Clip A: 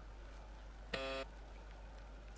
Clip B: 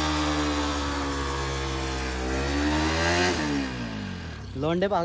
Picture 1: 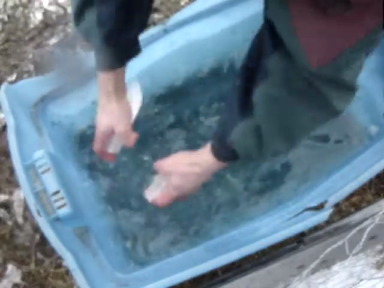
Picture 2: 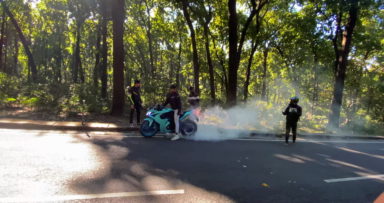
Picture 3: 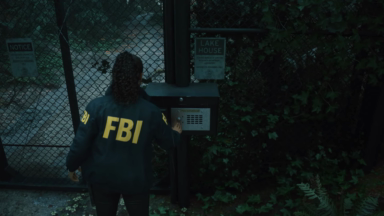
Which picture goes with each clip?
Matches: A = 3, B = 2